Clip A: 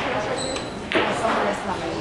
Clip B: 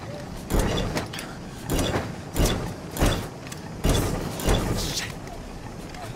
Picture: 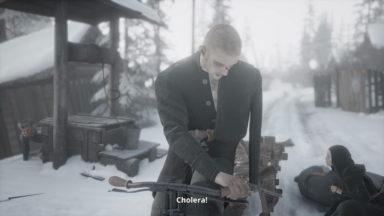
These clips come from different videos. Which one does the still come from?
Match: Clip B